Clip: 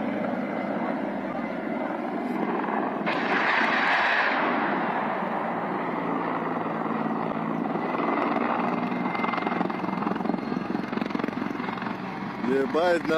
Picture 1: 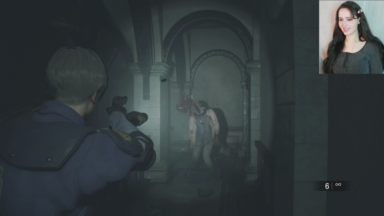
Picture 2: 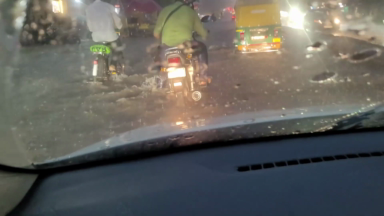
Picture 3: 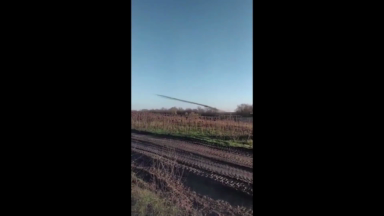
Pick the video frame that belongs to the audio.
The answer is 3